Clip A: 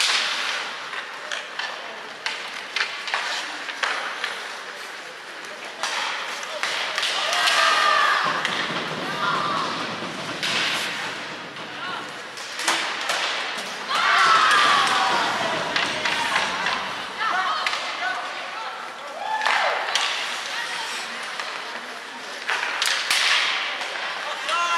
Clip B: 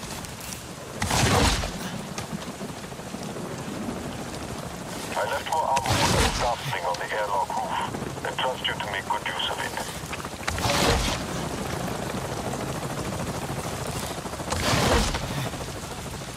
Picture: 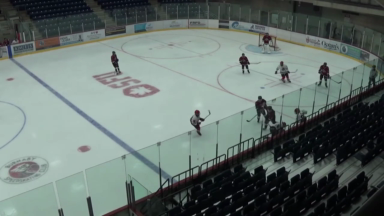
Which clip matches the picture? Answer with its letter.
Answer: A